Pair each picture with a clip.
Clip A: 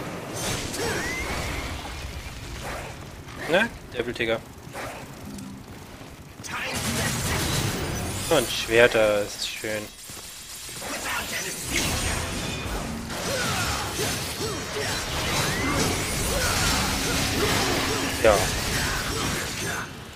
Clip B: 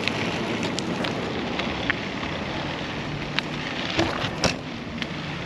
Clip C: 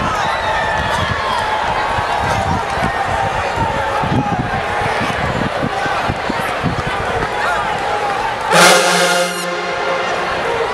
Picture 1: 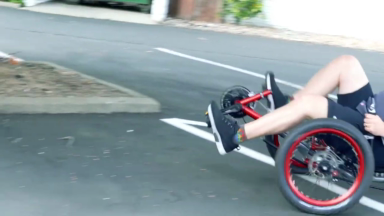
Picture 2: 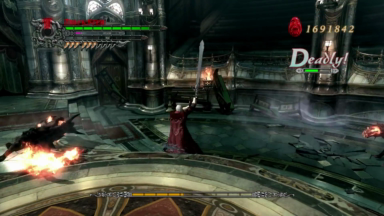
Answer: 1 B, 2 A